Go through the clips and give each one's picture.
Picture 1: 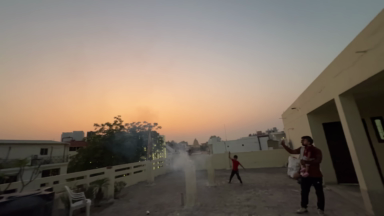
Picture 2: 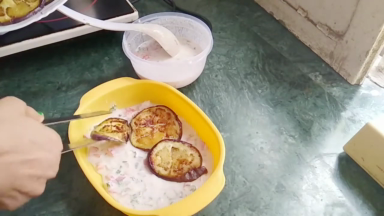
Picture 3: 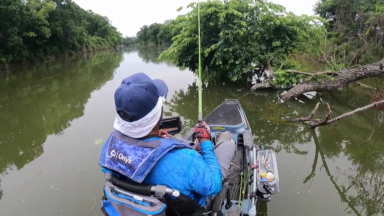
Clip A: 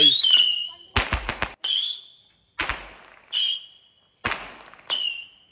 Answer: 1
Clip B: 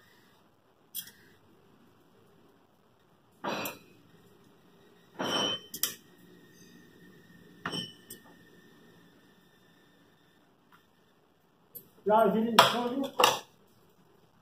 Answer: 2